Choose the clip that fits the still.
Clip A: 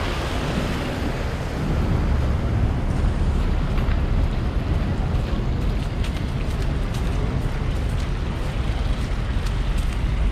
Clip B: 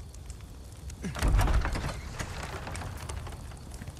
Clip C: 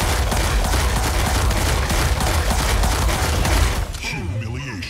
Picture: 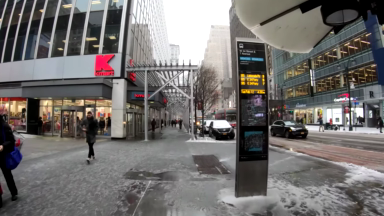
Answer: A